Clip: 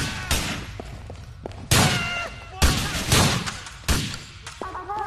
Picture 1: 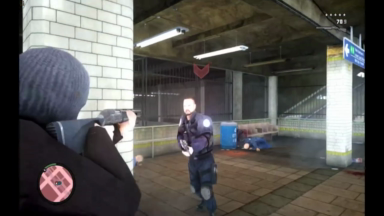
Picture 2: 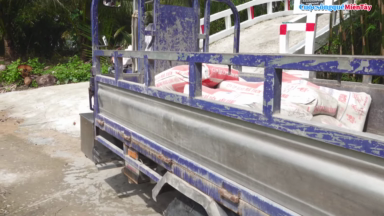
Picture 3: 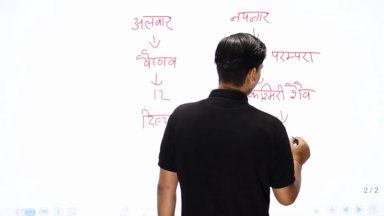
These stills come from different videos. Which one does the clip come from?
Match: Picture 1